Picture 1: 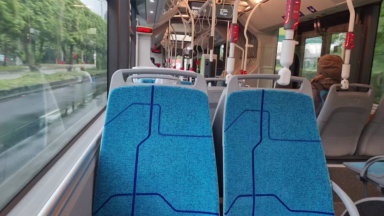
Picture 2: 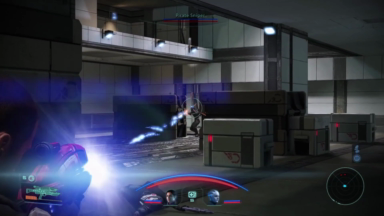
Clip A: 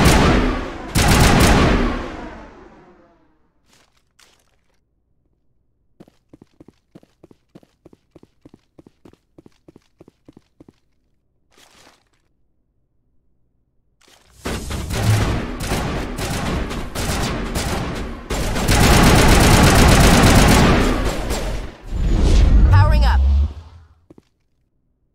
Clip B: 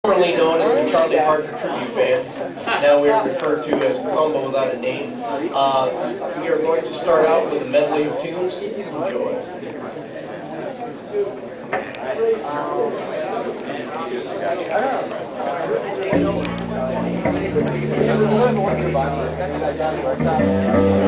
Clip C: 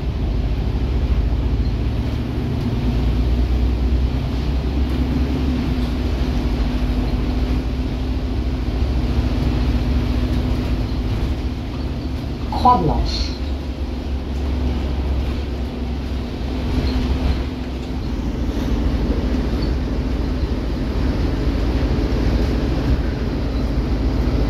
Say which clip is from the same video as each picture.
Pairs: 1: C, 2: A